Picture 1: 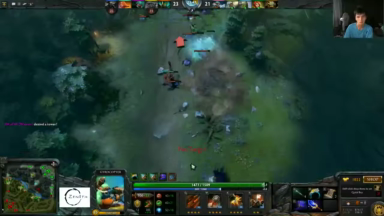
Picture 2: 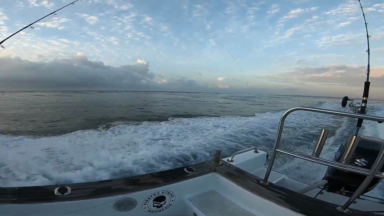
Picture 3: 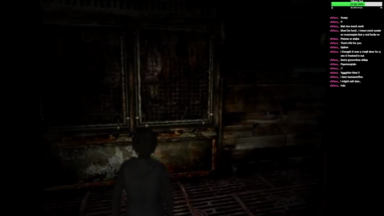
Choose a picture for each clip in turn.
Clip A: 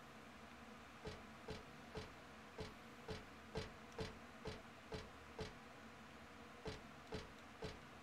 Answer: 3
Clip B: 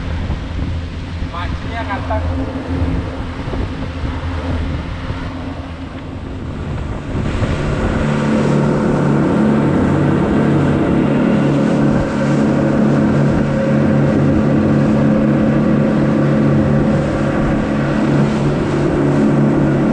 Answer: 2